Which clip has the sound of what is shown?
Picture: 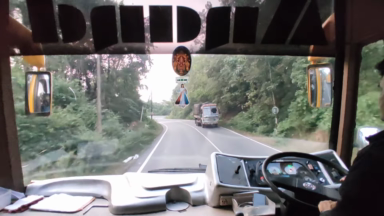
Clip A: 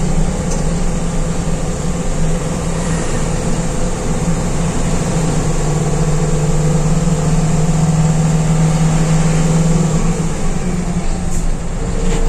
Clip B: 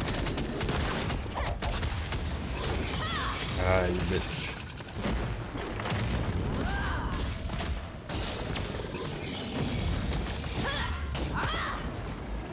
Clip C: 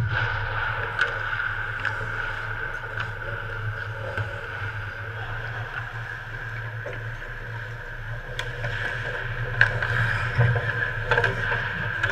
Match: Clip A